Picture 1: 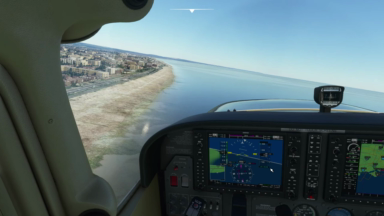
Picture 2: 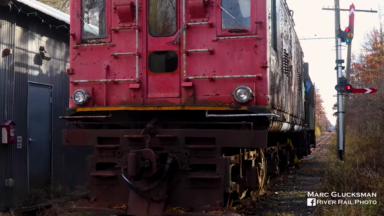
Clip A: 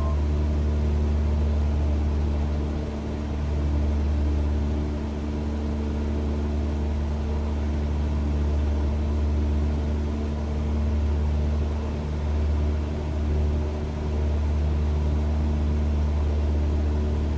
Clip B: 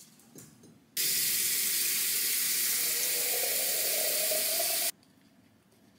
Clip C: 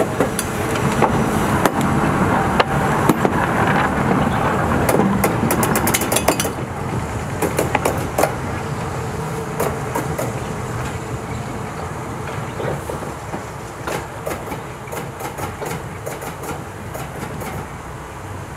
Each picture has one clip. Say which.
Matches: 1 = A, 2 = C